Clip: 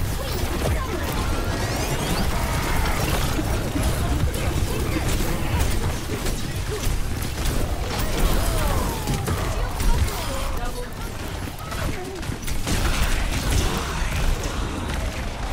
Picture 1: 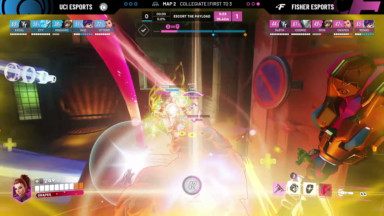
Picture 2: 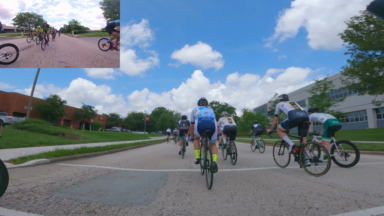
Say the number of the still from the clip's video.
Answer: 1